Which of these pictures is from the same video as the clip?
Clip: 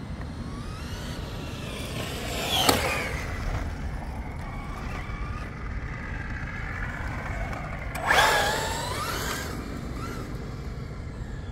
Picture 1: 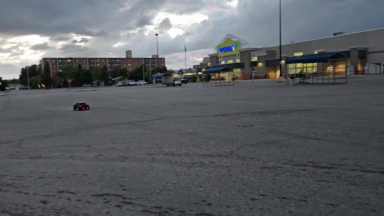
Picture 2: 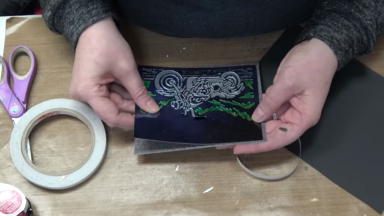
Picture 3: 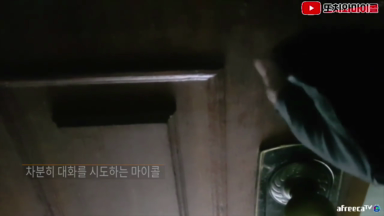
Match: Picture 1